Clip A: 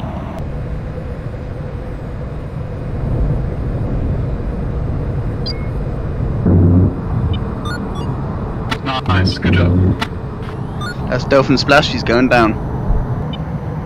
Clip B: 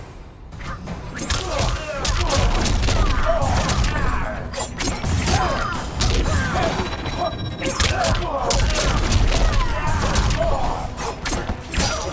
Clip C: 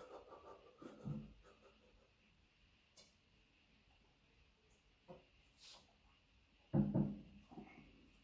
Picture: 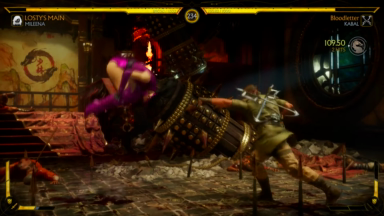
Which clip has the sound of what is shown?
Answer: B